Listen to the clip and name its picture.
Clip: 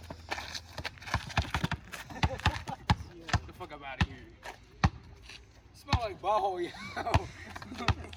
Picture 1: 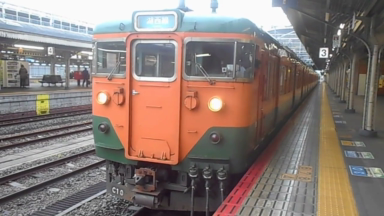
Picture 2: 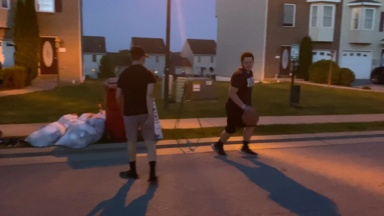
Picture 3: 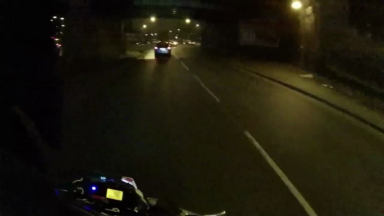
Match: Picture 2